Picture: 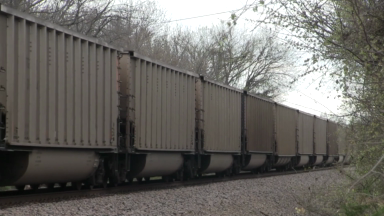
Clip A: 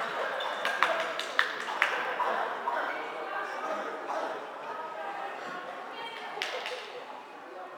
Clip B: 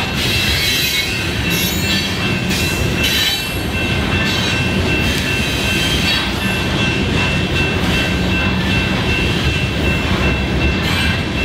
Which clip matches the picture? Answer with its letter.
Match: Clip B